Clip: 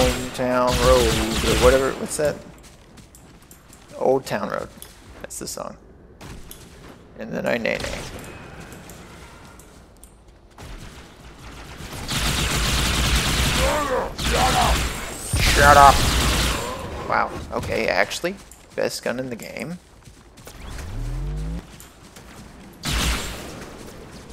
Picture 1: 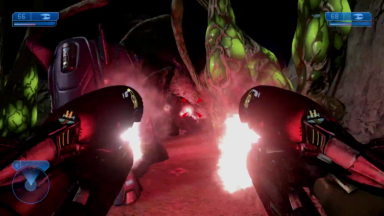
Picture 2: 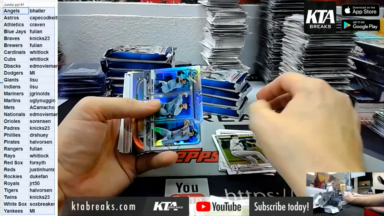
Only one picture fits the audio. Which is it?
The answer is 1